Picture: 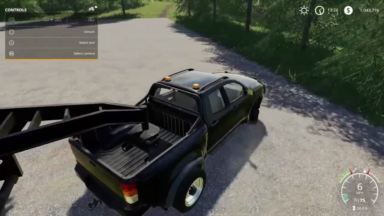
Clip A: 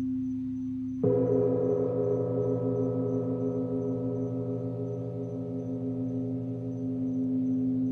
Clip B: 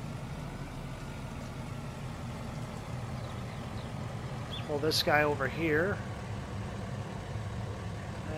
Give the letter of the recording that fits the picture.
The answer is B